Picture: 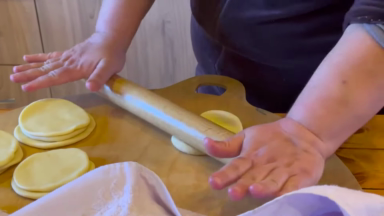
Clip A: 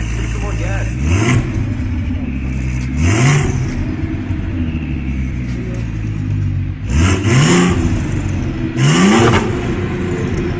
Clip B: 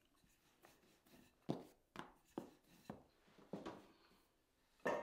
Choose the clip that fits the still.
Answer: B